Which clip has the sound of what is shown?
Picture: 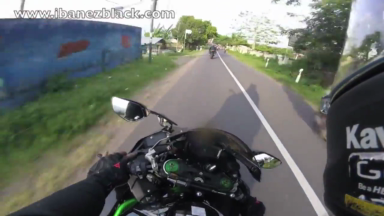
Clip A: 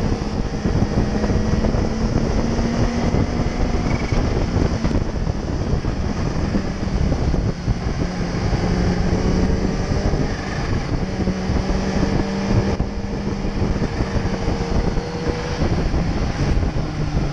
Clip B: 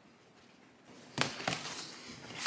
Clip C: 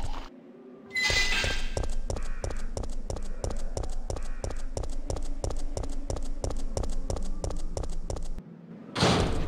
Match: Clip A